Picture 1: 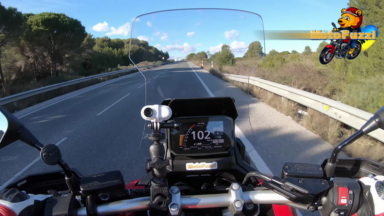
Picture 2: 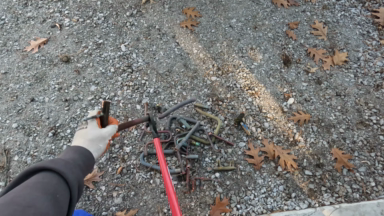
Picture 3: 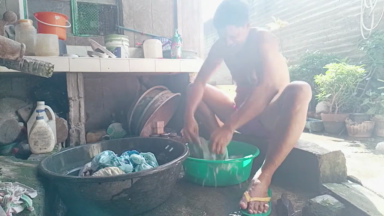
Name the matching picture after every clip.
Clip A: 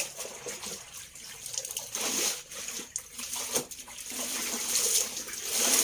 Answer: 3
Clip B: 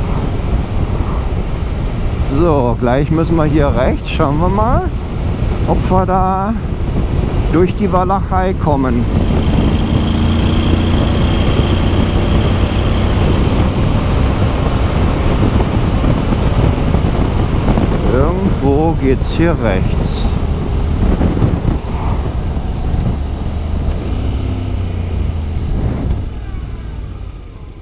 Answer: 1